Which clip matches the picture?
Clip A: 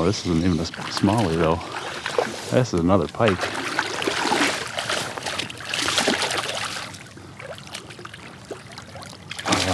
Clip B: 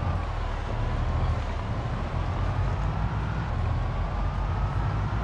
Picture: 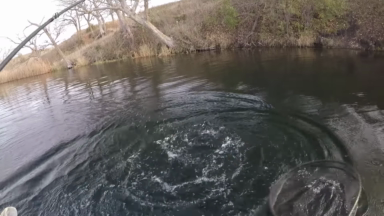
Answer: A